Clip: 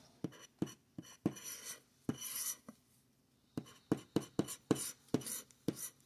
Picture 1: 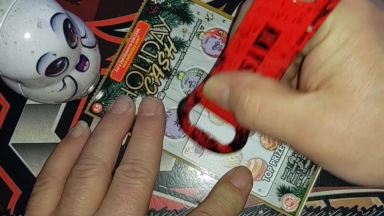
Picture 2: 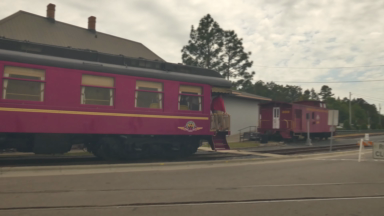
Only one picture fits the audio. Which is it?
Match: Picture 1